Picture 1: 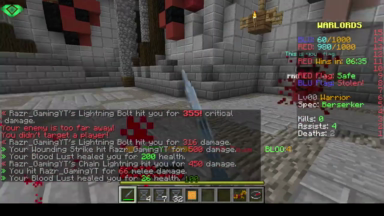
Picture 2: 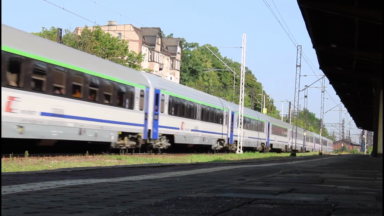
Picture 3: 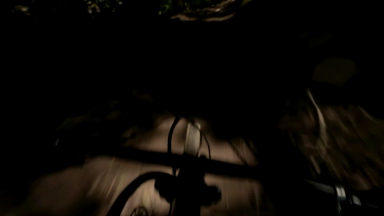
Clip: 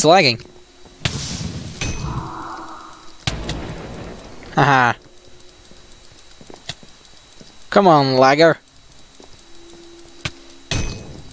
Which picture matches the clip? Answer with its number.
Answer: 1